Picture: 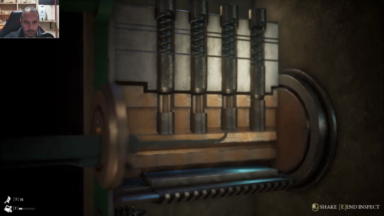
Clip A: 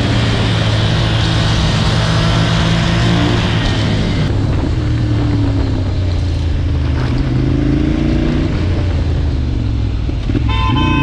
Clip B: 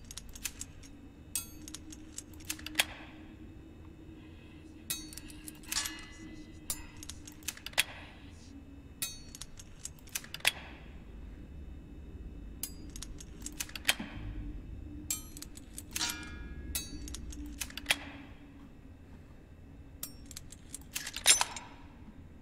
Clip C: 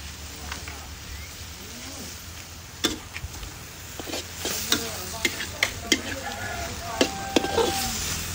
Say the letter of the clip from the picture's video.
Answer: B